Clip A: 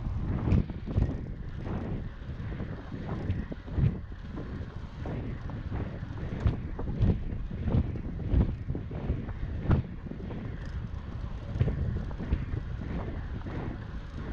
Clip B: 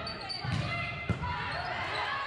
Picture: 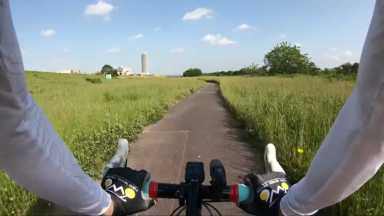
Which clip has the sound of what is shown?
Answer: A